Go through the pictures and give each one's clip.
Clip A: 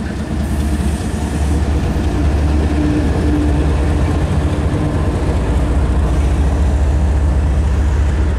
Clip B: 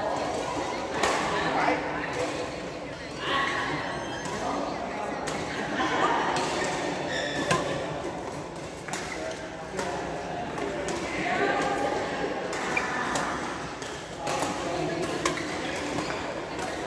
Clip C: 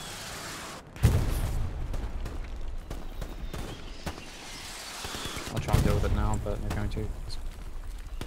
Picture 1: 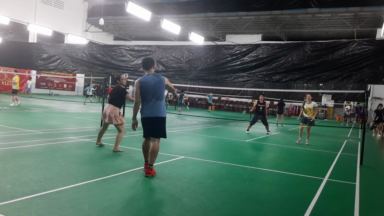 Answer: B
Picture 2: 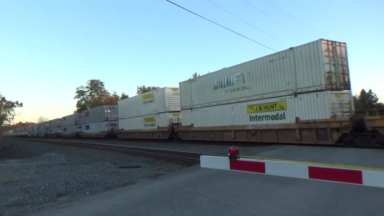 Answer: A